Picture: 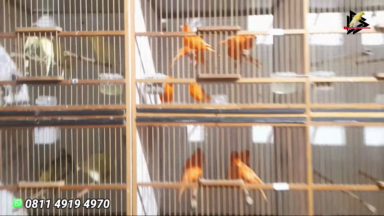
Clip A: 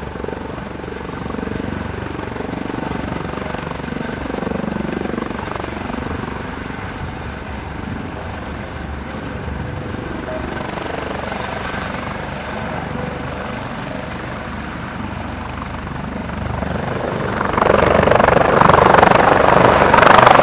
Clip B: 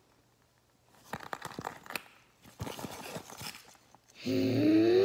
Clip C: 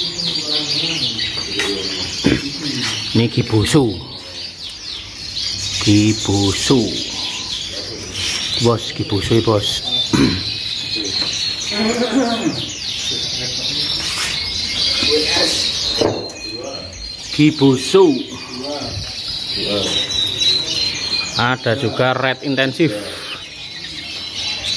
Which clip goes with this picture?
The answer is C